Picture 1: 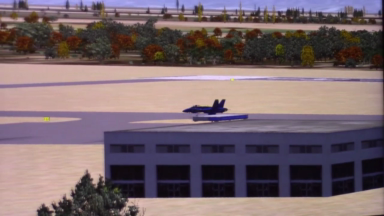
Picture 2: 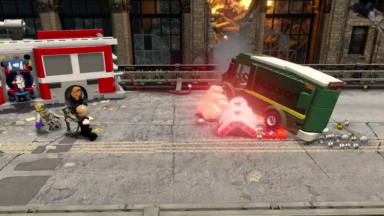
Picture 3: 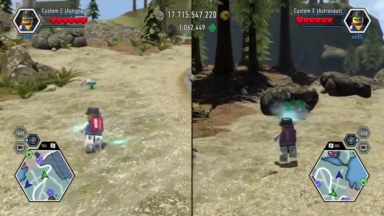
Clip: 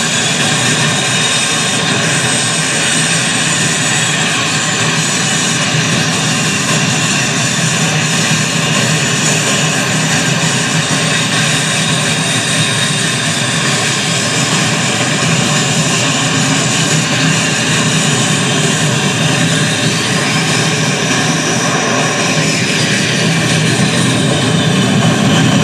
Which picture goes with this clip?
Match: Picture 1